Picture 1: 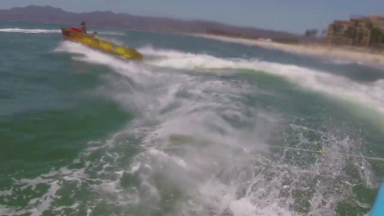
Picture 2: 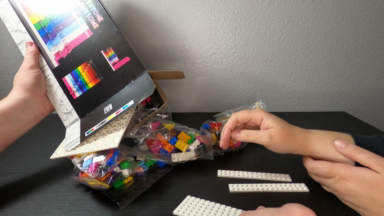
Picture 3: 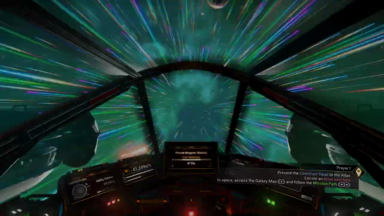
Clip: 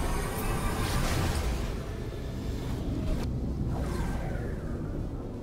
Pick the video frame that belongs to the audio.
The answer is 3